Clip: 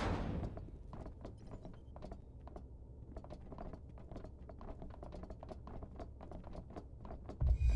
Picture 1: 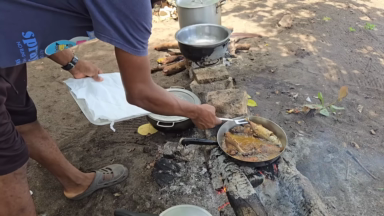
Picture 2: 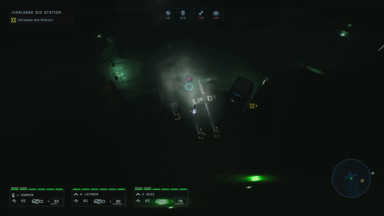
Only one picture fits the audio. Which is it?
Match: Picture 2